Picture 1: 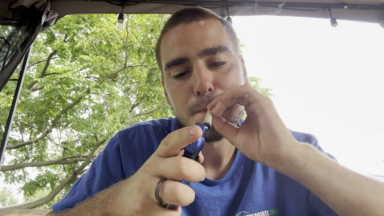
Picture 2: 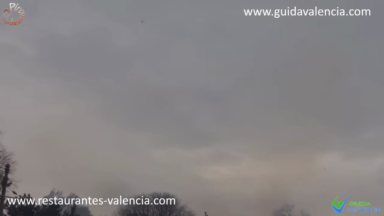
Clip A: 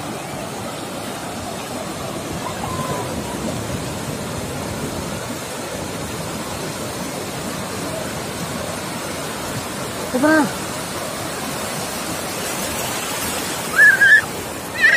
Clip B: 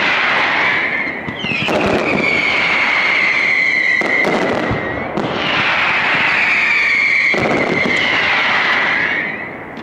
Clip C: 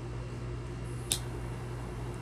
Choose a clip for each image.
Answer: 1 C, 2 B